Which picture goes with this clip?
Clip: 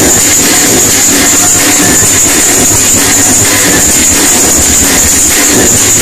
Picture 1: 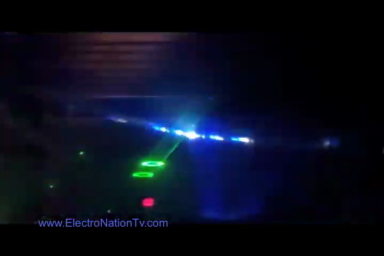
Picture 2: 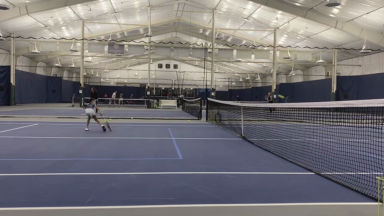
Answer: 1